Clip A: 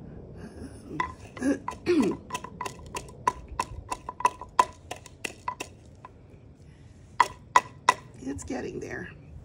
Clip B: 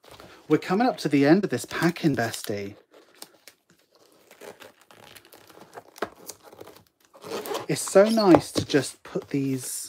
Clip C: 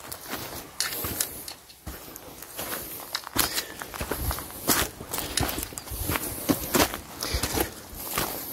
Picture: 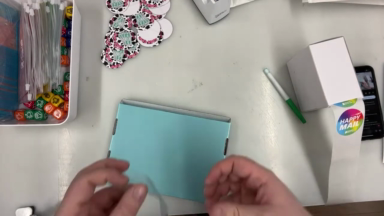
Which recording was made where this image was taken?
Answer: B